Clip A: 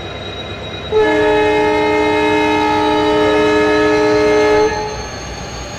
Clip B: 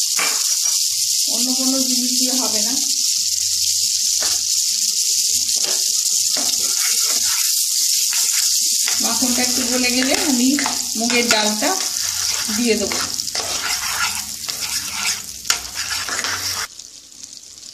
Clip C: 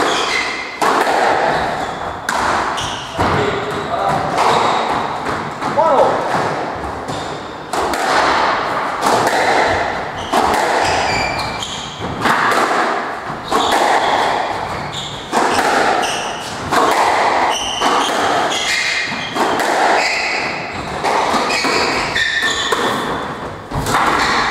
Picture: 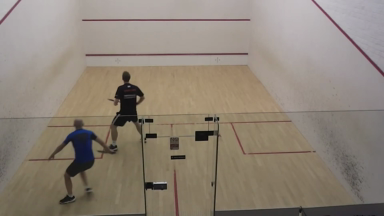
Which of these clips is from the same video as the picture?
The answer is C